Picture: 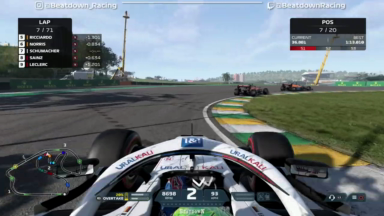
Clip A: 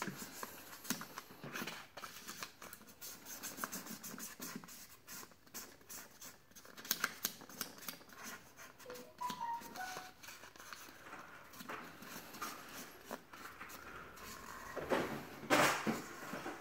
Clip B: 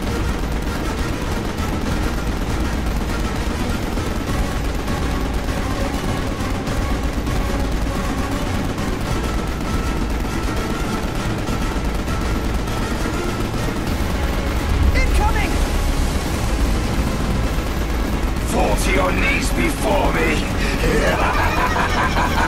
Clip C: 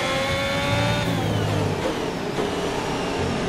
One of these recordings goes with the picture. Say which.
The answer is C